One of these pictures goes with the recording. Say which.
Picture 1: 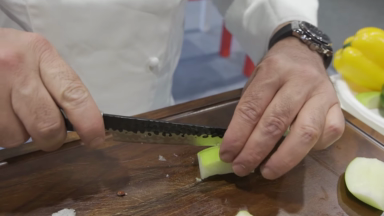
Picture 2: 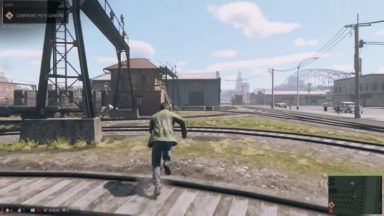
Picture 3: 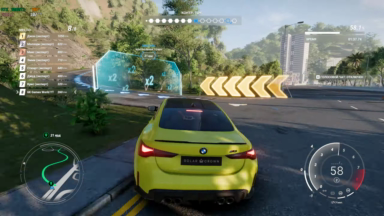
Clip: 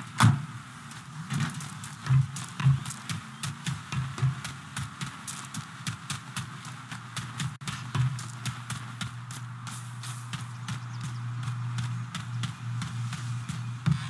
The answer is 2